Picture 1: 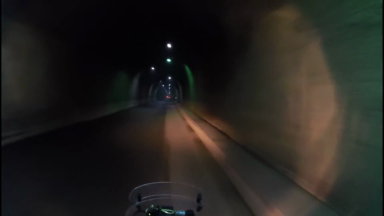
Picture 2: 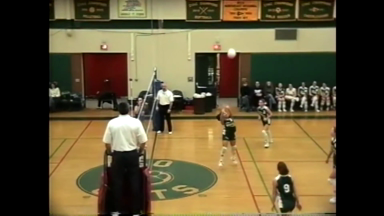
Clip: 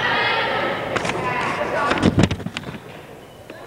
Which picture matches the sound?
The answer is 2